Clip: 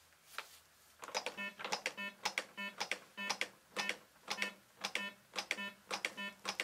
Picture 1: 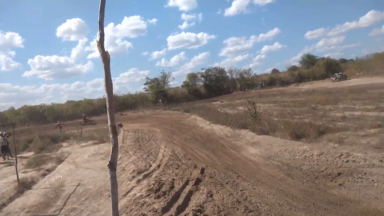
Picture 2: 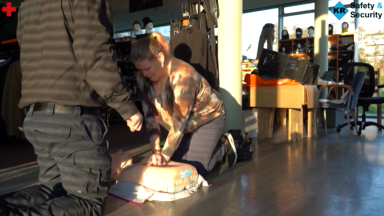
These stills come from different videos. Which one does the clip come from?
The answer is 2